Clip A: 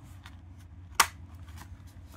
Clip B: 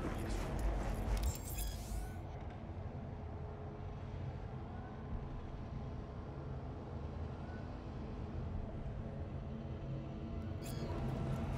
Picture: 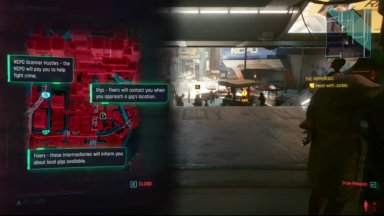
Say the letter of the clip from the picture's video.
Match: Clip B